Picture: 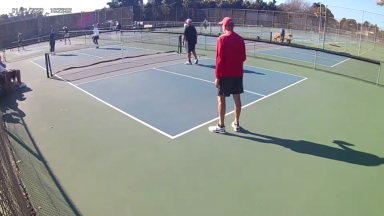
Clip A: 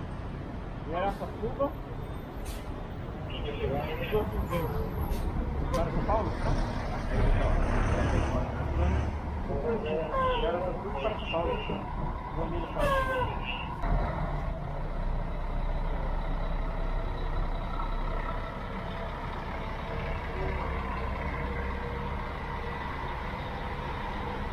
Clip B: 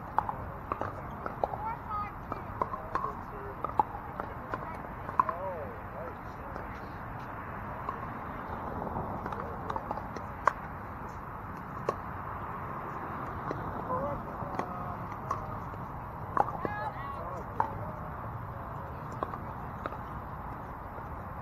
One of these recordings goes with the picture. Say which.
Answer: B